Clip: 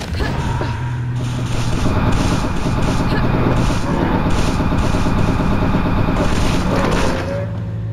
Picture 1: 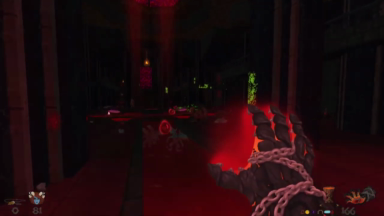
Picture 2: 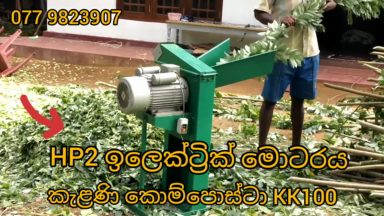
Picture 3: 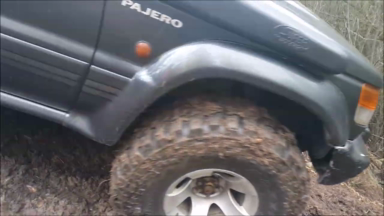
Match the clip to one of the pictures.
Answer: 1